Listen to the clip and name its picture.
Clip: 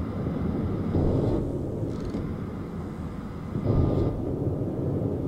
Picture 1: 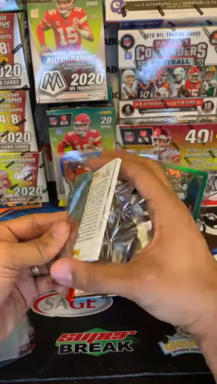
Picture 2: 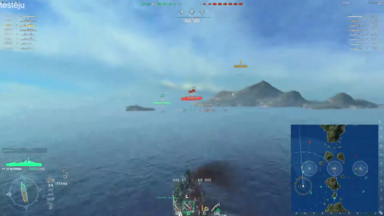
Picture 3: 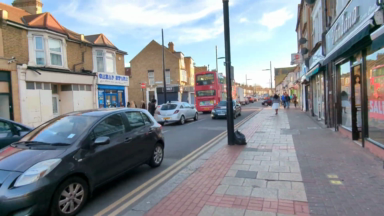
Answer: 2